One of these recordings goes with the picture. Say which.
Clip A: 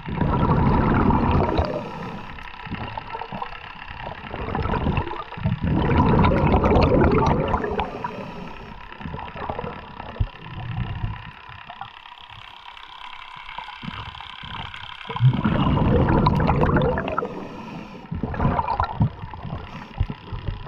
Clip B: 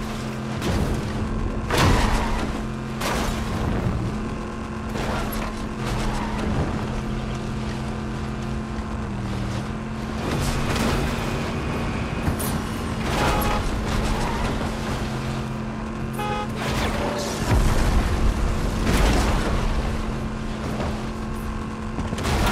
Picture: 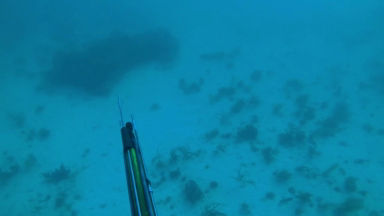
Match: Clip A